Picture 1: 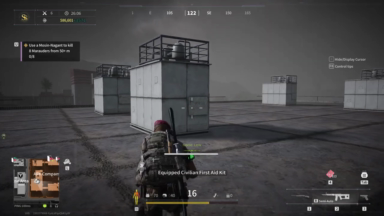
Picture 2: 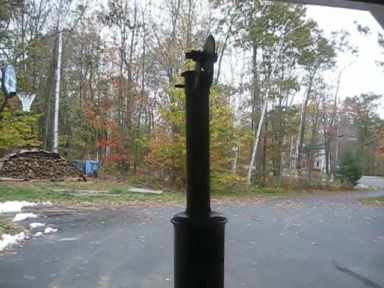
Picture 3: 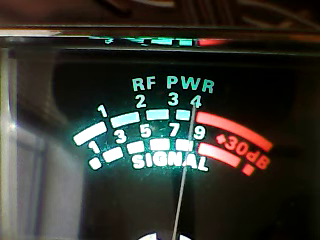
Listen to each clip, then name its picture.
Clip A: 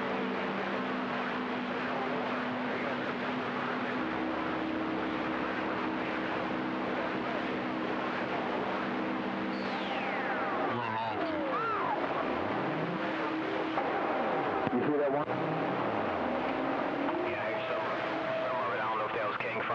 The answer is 3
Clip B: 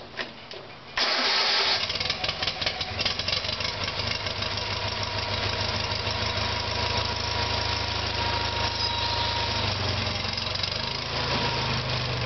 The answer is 2